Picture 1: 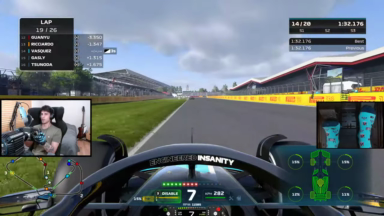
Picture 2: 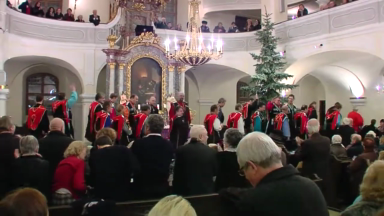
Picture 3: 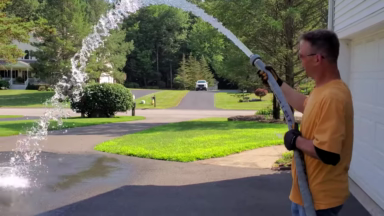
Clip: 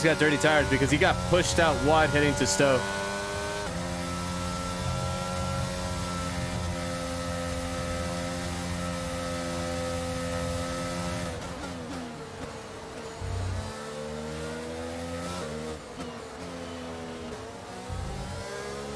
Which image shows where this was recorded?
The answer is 1